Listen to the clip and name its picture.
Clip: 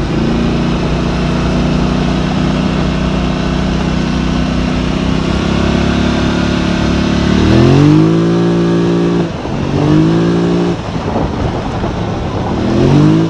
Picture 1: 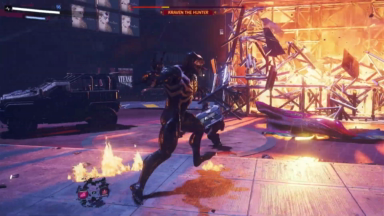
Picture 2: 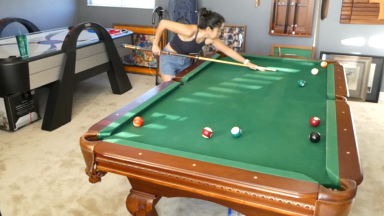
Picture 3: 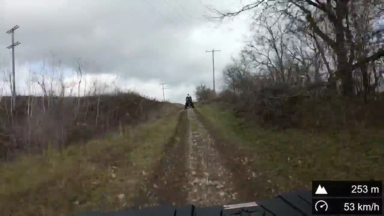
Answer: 3